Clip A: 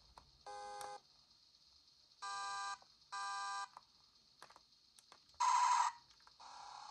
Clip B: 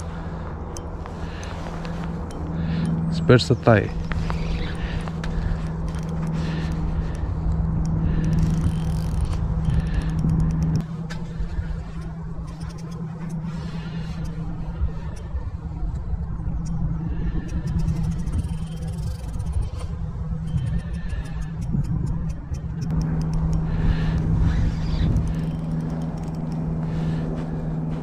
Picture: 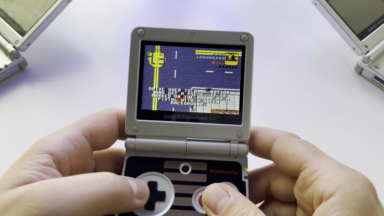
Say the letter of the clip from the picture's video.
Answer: A